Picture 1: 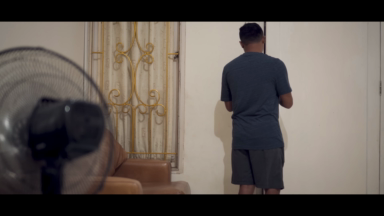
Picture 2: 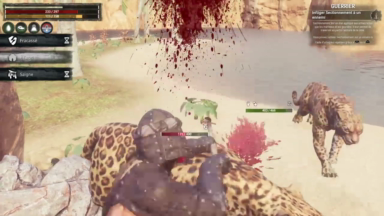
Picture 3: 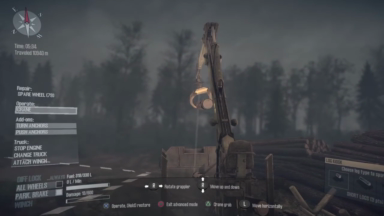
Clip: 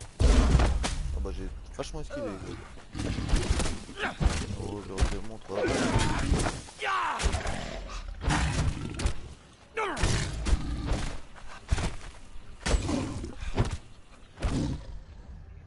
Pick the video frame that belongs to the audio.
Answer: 2